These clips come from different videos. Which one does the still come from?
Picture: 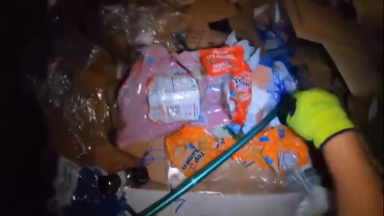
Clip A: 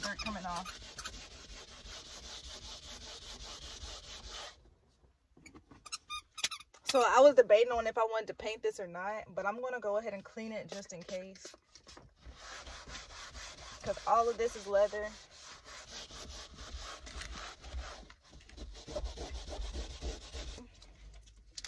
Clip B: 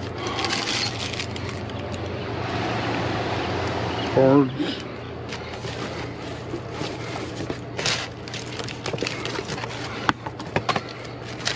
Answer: B